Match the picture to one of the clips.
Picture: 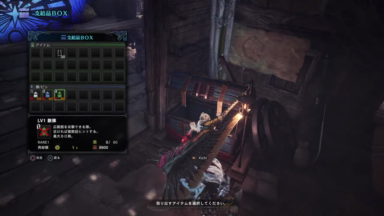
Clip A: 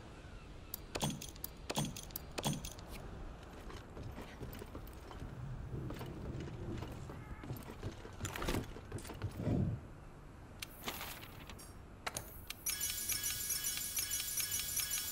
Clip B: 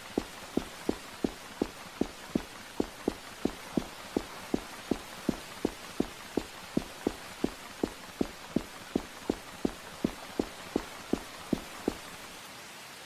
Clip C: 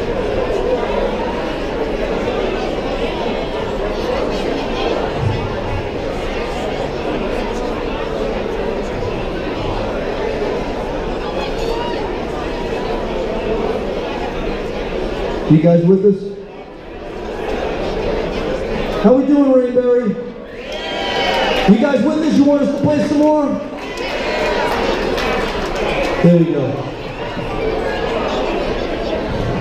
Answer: A